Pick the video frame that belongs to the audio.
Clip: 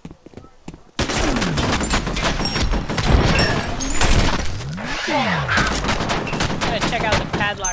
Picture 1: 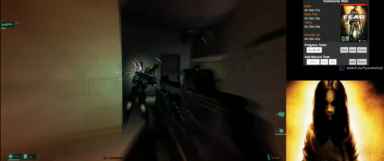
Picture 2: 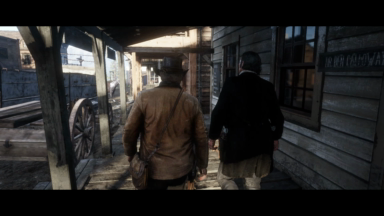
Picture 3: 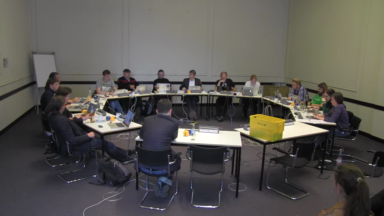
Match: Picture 1